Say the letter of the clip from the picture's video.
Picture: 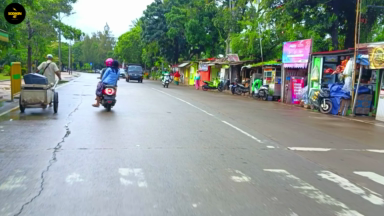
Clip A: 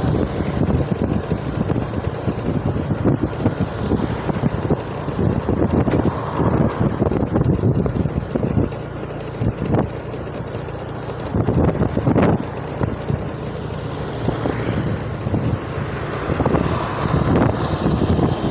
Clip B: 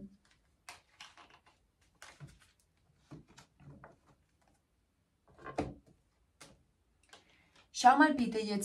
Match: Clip A